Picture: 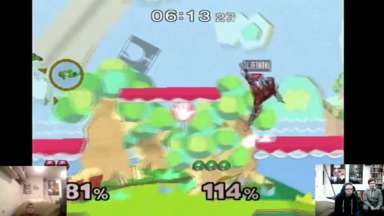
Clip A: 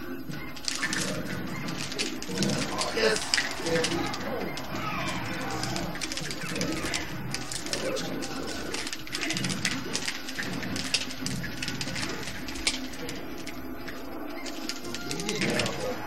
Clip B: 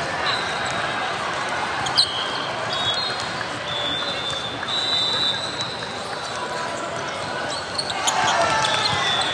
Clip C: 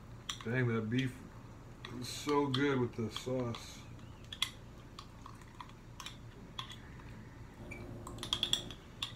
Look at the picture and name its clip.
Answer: A